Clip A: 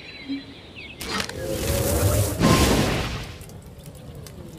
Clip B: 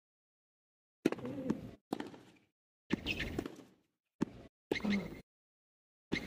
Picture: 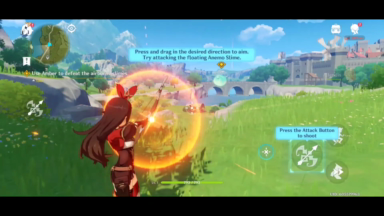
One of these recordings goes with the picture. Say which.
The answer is A